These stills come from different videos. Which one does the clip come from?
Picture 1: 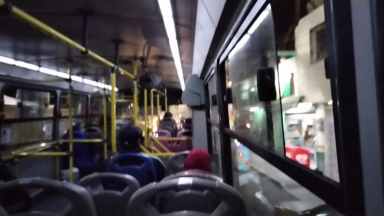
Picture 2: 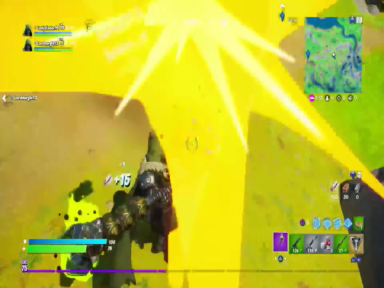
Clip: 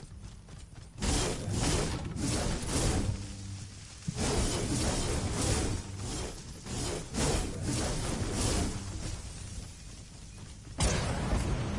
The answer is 2